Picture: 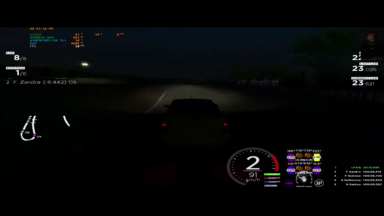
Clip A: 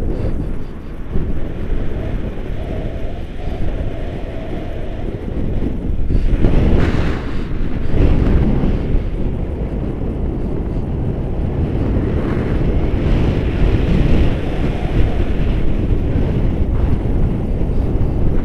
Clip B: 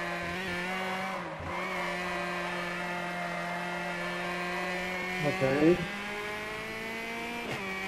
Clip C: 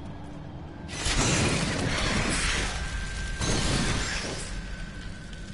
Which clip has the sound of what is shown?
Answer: B